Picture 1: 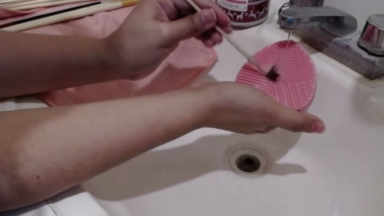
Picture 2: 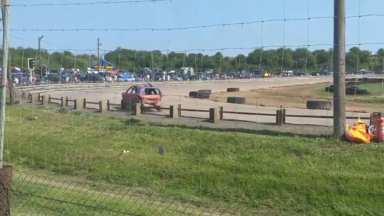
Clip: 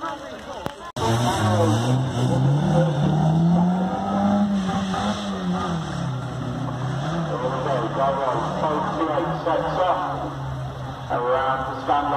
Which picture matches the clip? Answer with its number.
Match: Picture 2